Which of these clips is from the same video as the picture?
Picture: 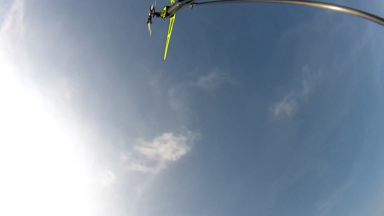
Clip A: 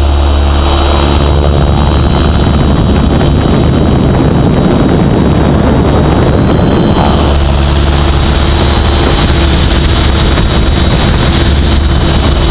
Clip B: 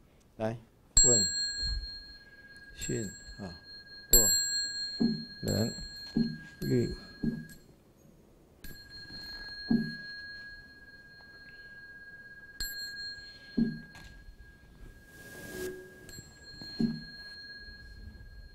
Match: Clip A